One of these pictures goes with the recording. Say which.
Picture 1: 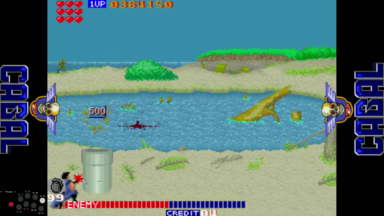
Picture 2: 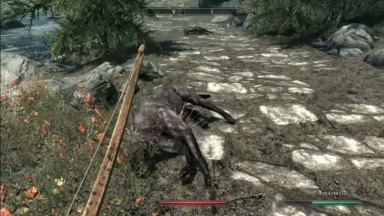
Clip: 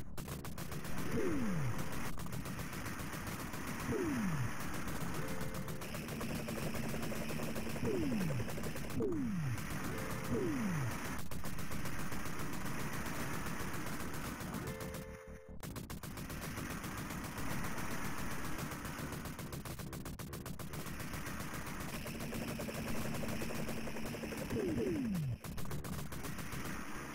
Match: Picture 1